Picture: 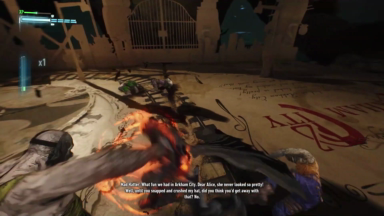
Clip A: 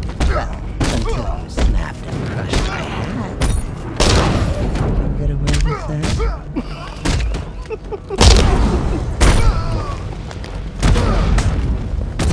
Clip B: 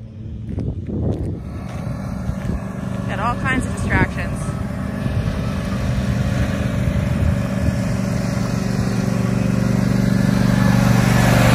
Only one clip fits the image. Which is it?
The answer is A